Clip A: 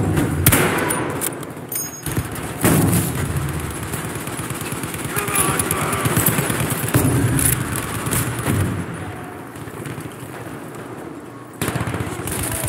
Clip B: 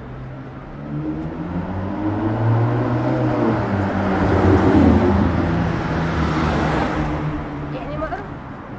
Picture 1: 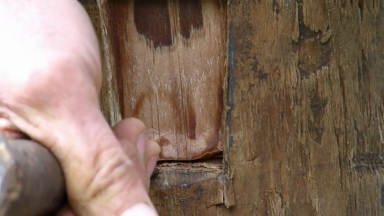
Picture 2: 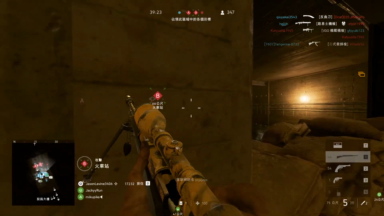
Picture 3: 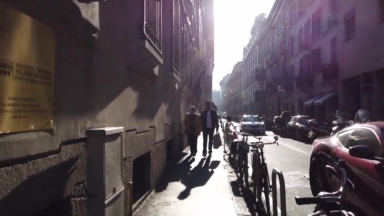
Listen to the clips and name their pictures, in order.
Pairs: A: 2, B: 3